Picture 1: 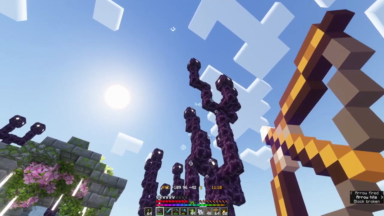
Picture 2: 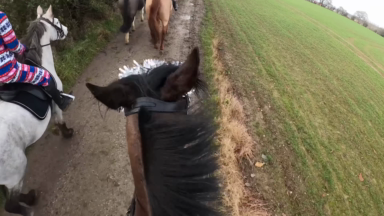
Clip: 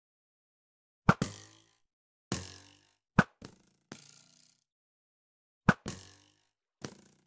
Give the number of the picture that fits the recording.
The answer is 1